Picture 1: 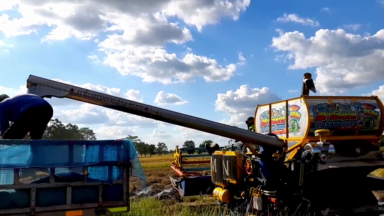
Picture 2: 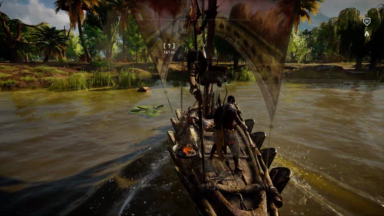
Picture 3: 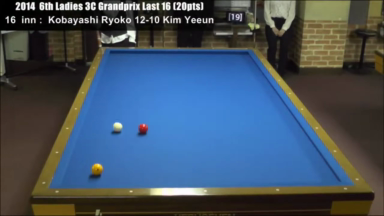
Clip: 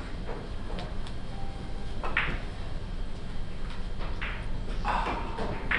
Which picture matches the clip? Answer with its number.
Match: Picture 3